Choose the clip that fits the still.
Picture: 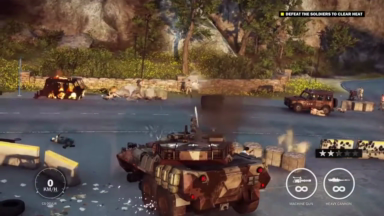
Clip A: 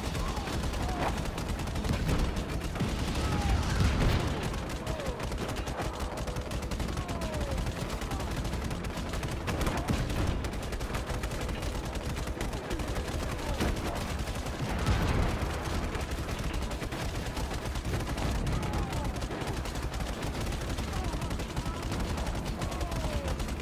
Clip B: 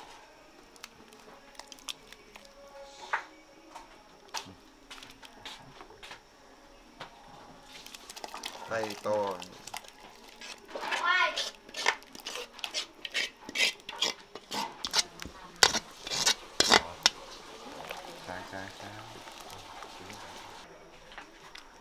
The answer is A